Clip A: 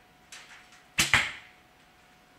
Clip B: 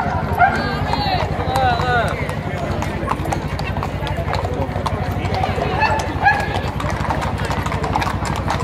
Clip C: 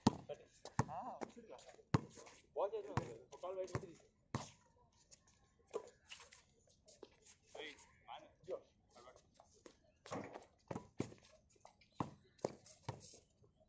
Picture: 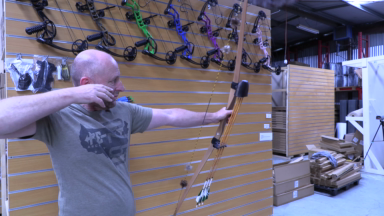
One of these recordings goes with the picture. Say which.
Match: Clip A